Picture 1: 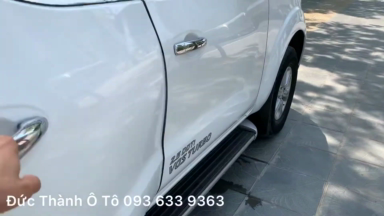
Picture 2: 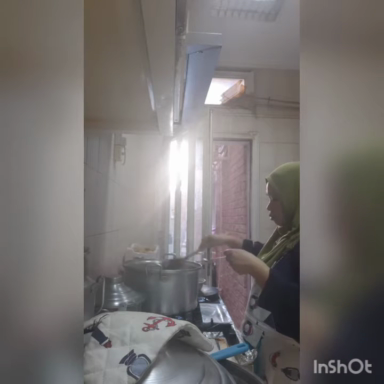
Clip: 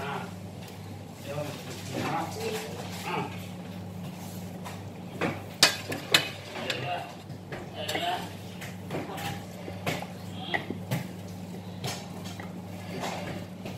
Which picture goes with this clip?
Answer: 2